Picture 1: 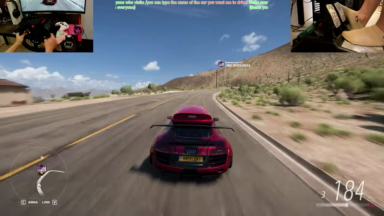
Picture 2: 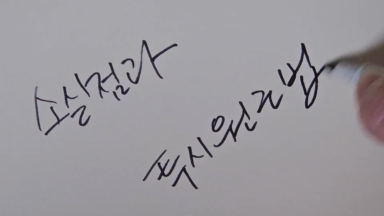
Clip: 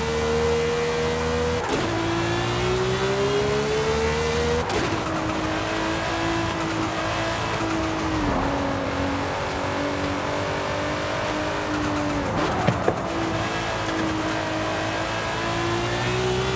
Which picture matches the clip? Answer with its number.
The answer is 1